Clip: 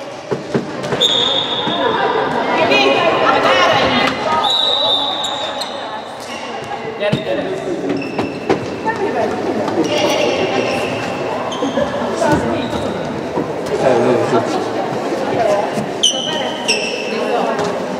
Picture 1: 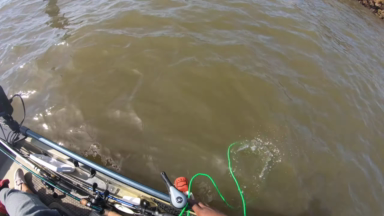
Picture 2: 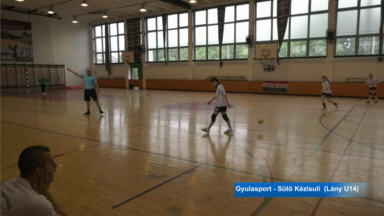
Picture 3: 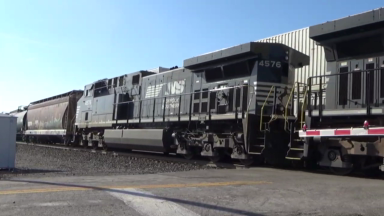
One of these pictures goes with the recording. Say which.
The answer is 2